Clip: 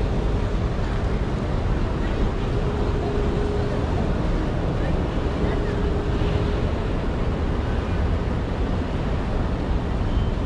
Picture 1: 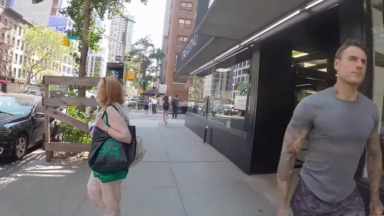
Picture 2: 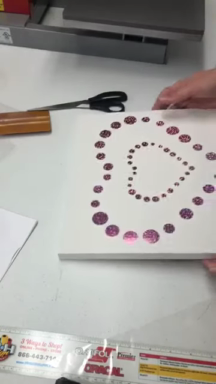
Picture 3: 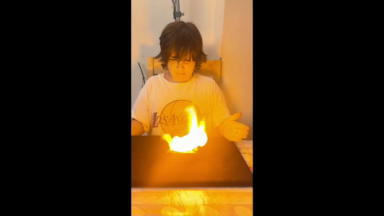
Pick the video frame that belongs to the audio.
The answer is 1